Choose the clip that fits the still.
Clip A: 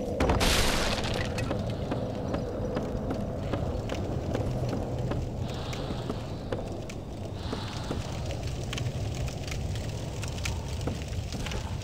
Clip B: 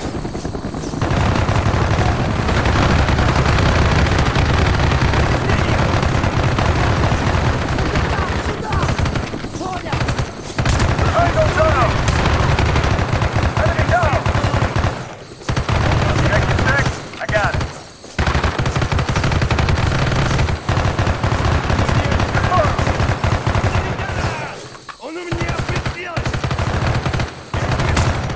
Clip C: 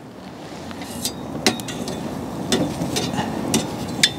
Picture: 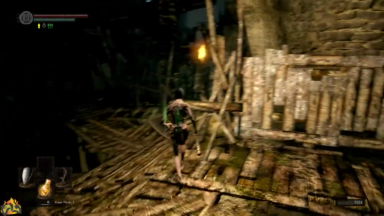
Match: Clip A